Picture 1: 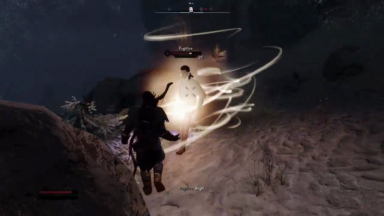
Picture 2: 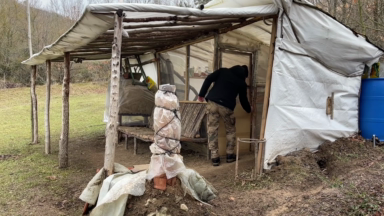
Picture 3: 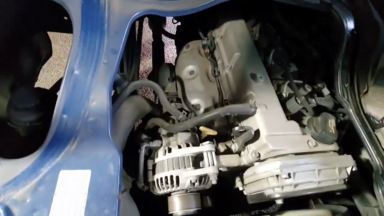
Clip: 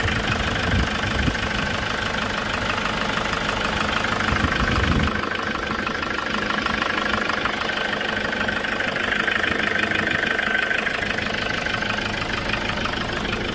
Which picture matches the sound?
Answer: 3